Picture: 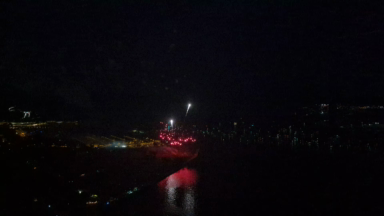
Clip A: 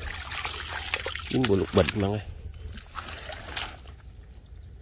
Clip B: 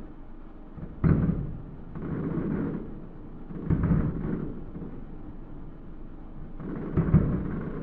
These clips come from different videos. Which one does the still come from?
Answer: B